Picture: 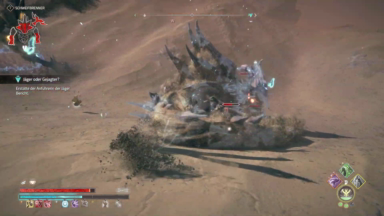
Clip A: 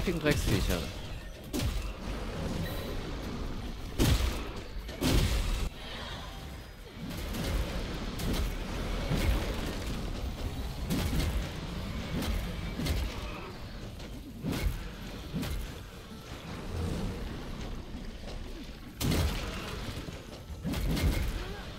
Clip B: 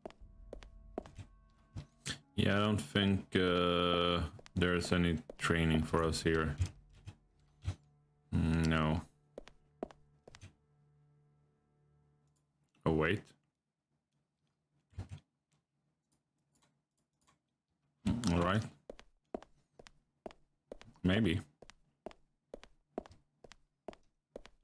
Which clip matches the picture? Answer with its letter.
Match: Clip A